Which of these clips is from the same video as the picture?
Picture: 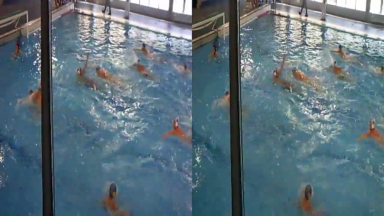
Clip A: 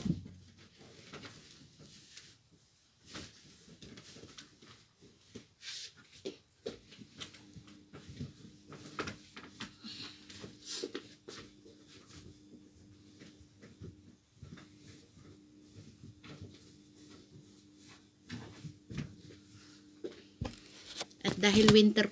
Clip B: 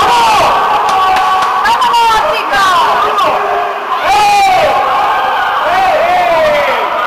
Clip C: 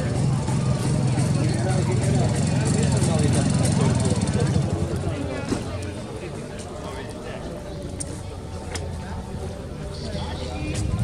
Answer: B